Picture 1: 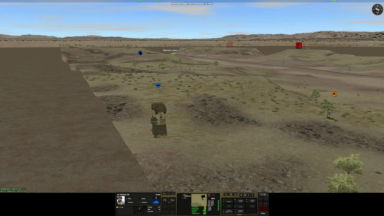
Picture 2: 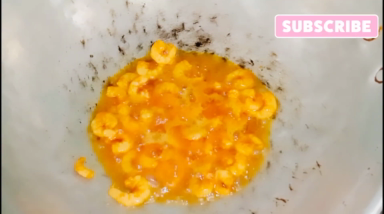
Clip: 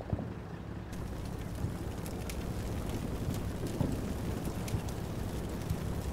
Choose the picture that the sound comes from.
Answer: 1